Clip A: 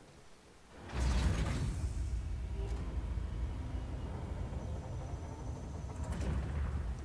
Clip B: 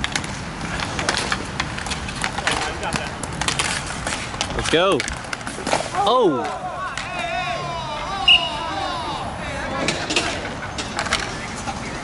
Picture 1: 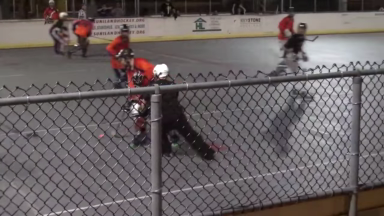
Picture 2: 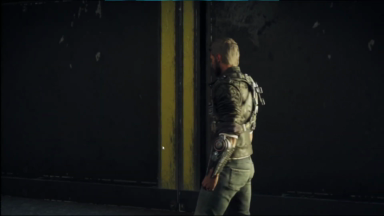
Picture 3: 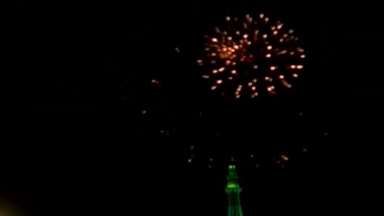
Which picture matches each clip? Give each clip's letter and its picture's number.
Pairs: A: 2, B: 1